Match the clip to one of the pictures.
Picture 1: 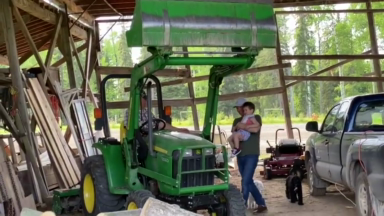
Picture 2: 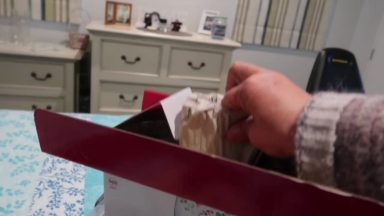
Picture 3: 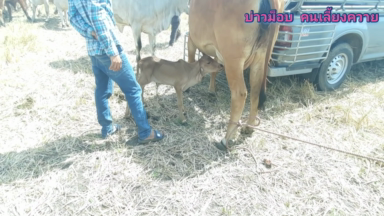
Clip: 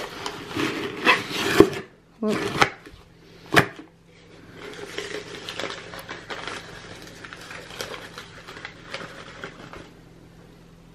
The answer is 2